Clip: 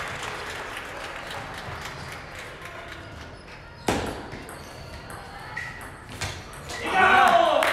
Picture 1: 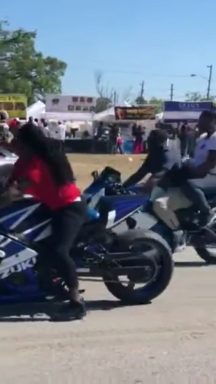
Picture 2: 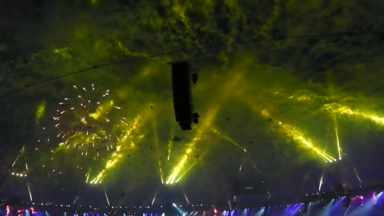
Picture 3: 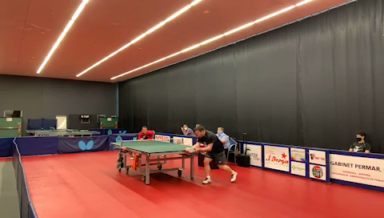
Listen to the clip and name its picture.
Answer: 3